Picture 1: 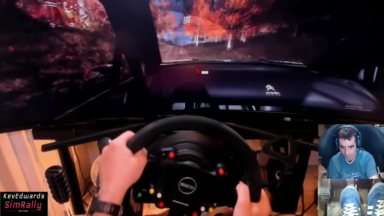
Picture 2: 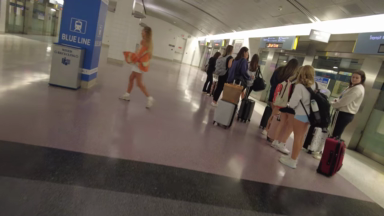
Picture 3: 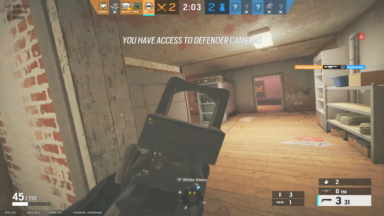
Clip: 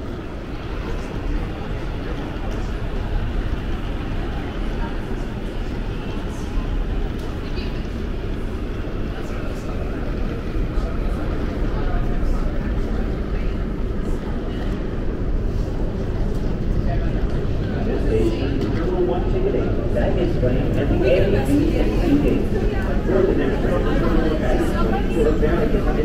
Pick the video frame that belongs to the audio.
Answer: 2